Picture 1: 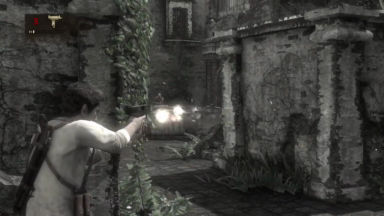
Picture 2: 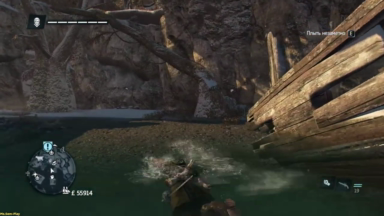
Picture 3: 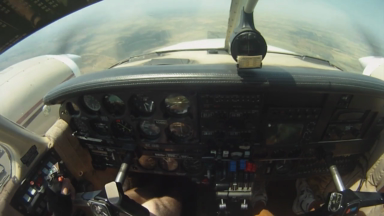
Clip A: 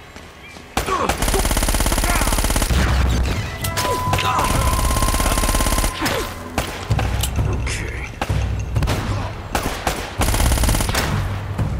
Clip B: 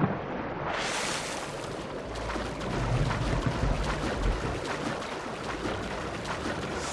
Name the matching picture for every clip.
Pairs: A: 1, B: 2